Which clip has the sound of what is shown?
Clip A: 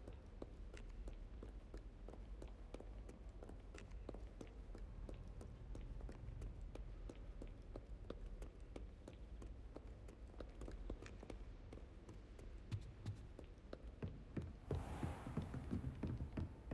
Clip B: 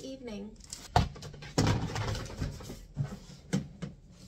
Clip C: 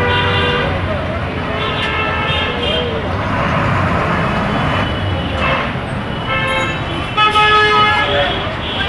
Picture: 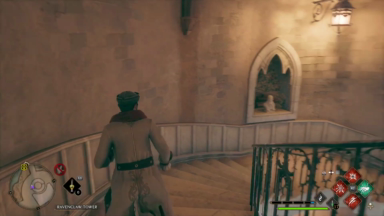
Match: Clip A